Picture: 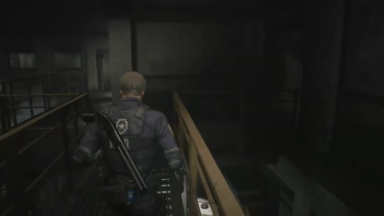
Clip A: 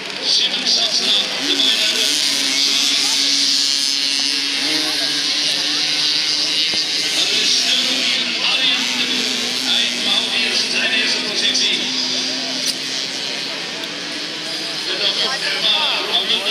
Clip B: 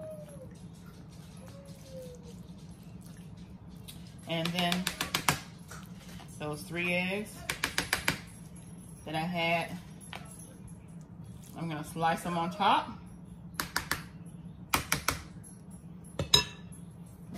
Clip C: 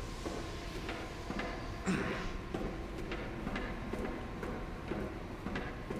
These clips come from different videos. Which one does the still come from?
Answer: C